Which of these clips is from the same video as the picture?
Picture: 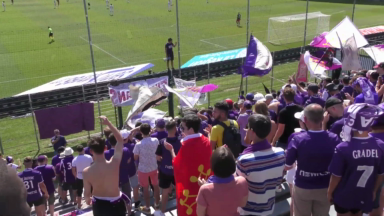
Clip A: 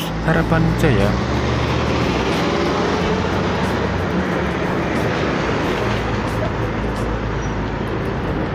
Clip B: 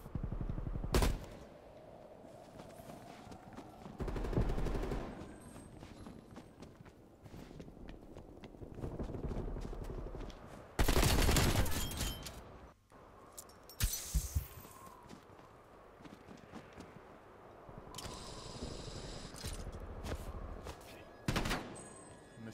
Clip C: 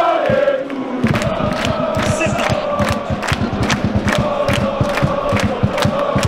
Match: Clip C